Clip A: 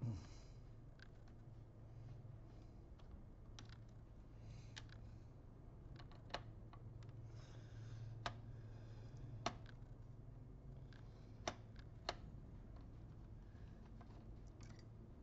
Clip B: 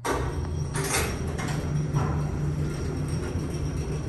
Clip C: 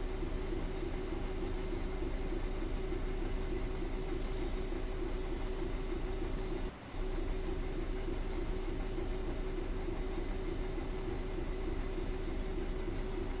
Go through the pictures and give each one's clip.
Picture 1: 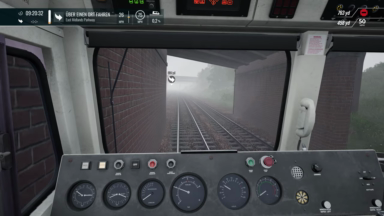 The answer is C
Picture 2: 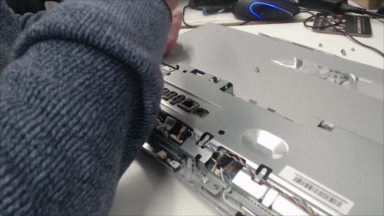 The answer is A